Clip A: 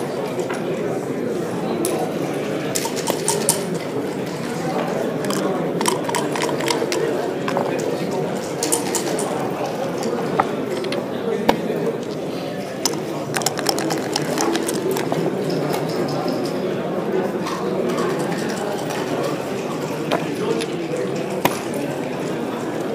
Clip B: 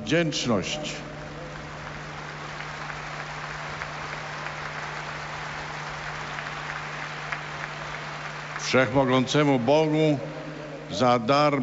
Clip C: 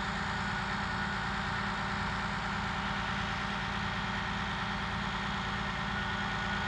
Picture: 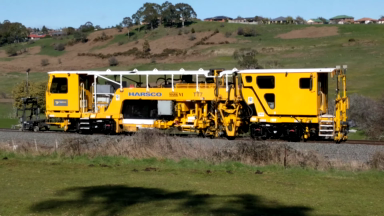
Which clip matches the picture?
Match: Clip C